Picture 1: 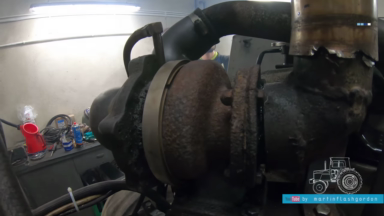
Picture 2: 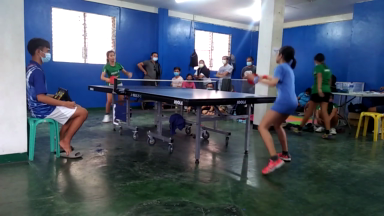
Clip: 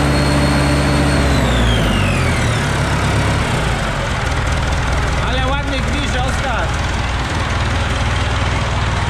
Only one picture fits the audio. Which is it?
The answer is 1